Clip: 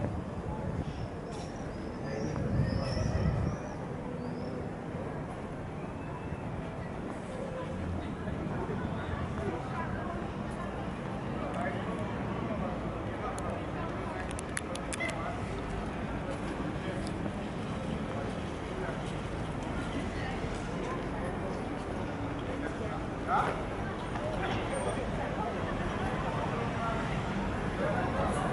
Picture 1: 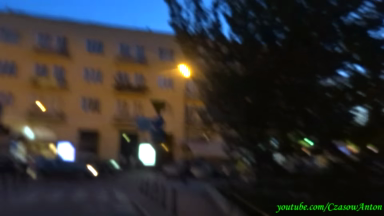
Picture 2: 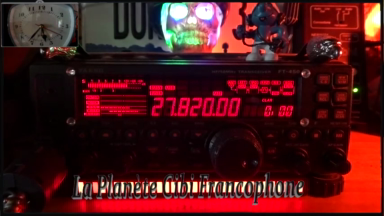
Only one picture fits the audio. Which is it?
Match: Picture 1